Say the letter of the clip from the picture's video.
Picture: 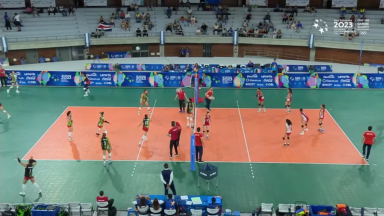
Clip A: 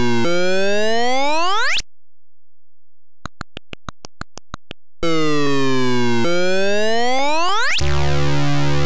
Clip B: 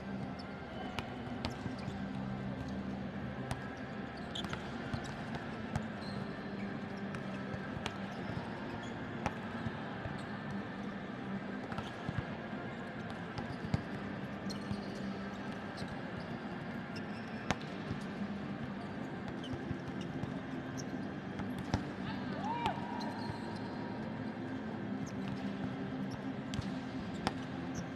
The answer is B